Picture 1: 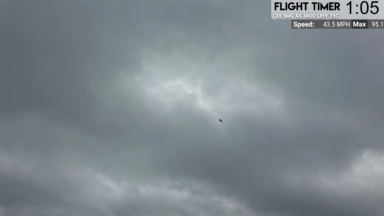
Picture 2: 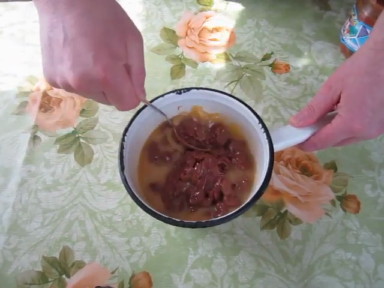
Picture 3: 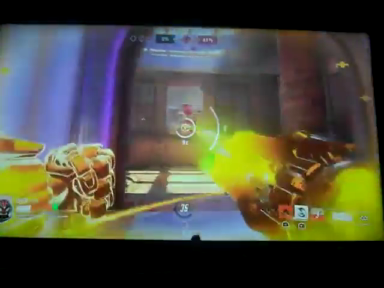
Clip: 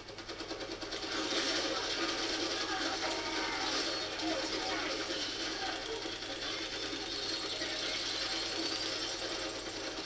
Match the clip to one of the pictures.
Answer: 3